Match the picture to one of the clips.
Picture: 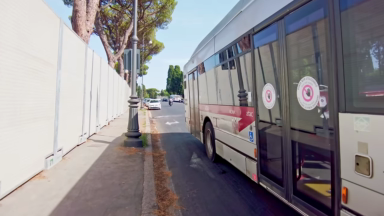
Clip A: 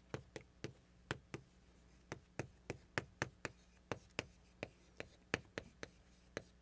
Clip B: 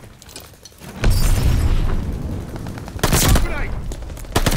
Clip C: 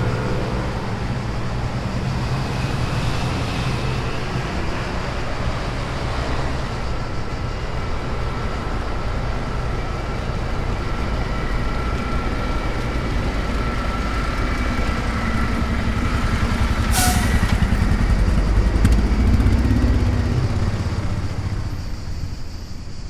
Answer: C